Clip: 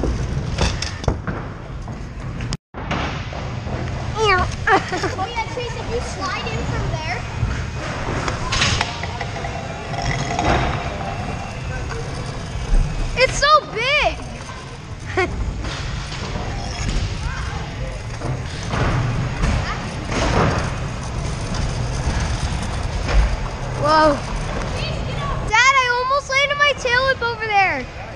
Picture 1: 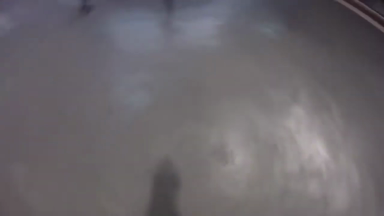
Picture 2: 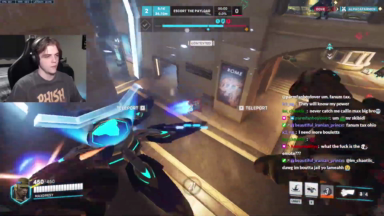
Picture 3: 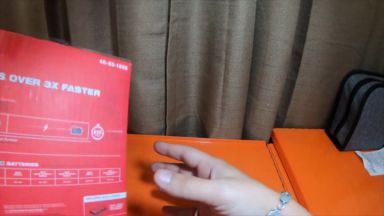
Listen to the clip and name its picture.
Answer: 1